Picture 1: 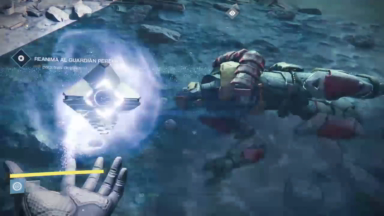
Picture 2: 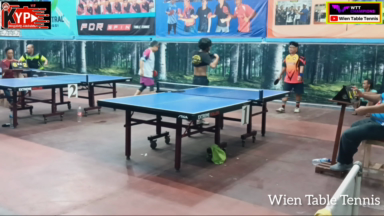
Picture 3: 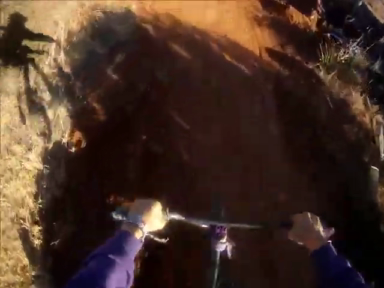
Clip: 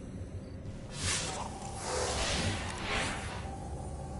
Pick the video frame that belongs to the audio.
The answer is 1